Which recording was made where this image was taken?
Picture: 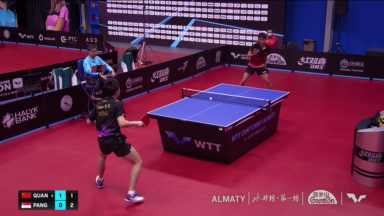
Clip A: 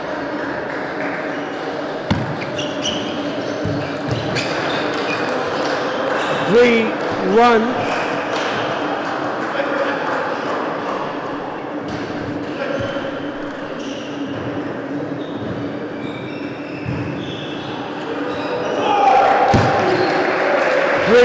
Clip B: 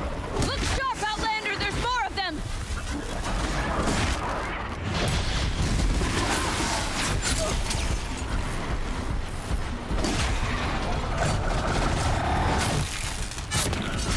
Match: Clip A